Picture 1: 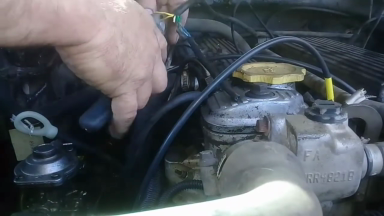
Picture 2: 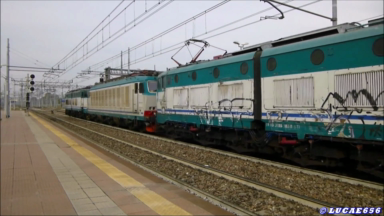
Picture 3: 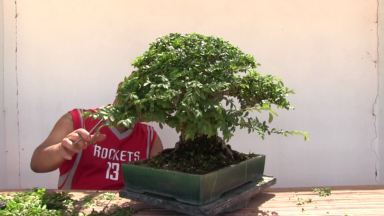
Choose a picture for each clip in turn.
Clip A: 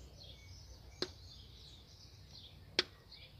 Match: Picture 1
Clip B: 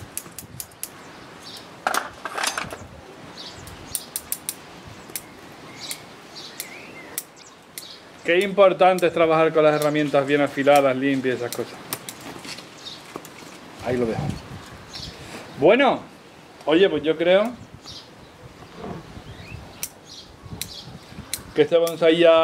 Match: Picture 3